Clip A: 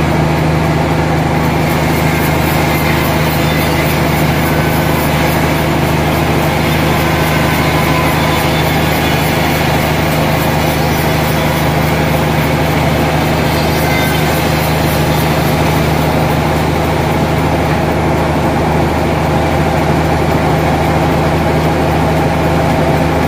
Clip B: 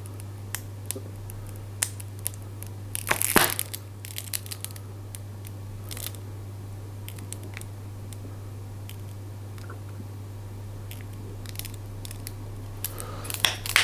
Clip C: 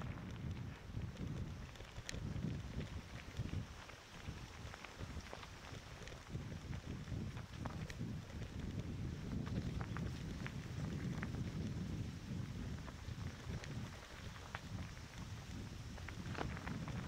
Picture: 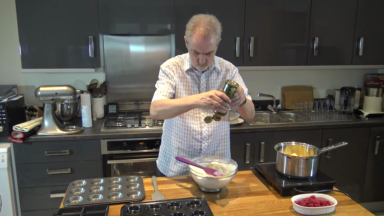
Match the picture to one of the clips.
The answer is B